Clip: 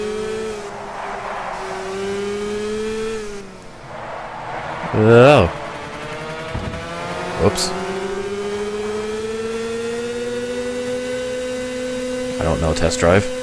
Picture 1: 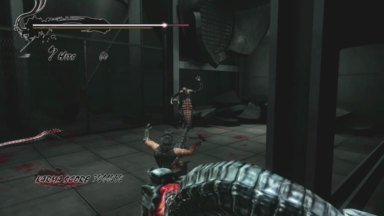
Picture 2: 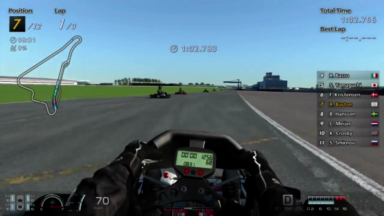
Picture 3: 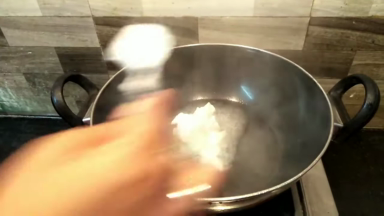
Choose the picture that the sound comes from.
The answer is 2